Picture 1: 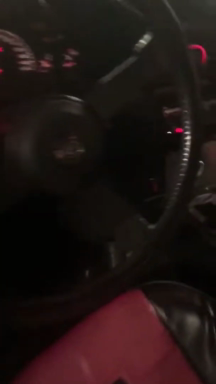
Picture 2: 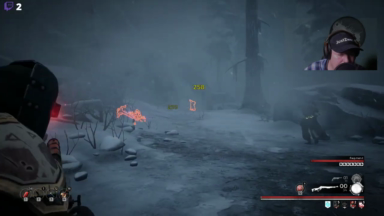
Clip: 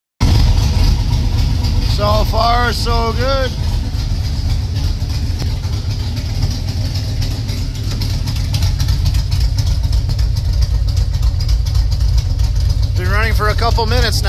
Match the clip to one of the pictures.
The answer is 1